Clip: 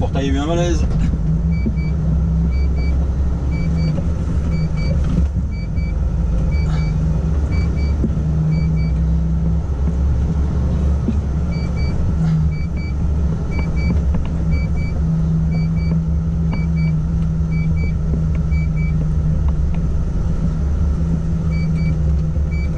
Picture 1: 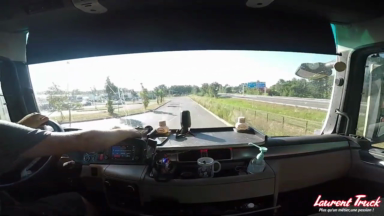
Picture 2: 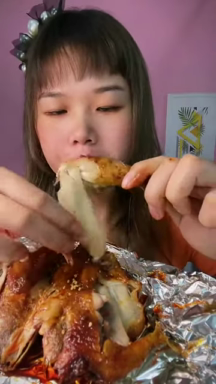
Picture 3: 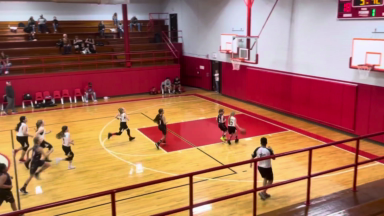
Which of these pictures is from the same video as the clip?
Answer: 1